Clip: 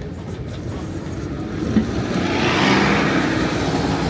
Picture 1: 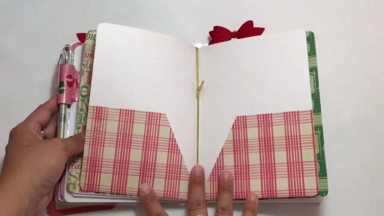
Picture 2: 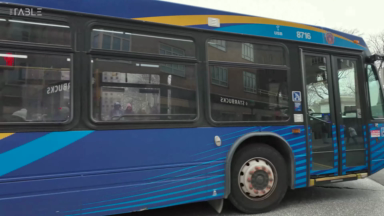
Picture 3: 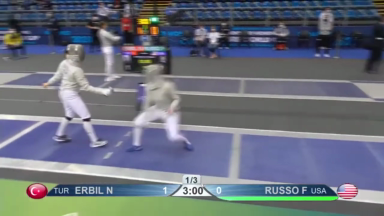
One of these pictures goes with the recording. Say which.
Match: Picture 2